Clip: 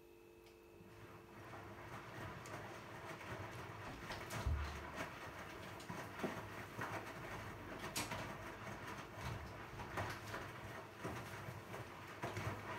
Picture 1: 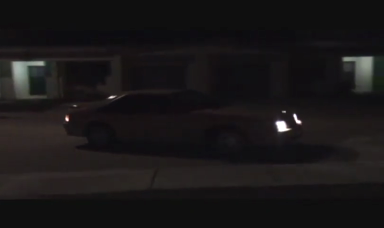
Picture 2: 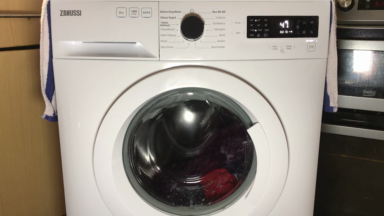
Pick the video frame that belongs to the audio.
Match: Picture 2